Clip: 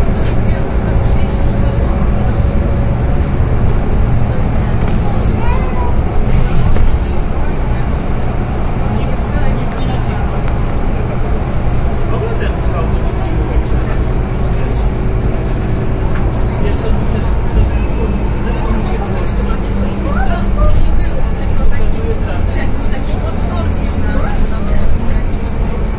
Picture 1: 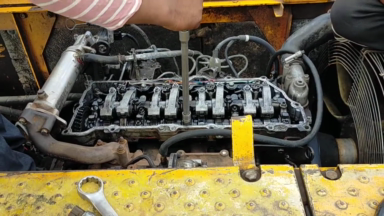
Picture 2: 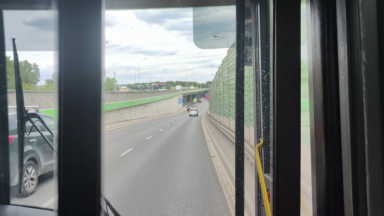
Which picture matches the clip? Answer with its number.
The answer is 2